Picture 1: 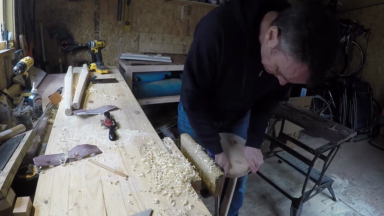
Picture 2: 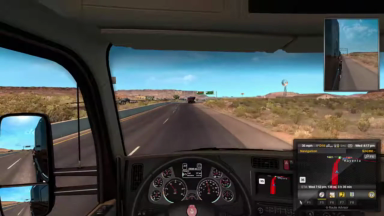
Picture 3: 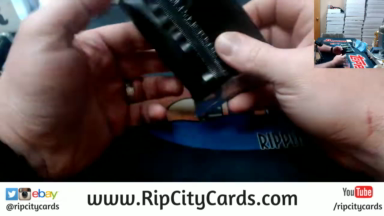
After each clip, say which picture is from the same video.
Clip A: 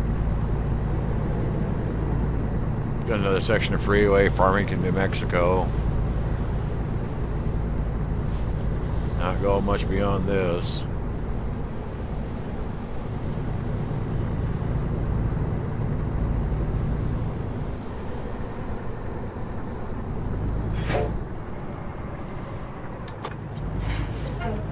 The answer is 2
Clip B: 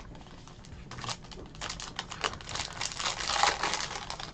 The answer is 3